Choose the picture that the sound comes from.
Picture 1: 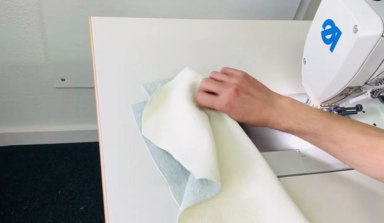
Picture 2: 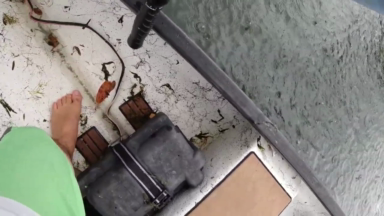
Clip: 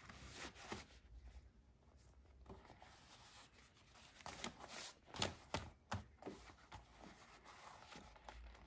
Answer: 1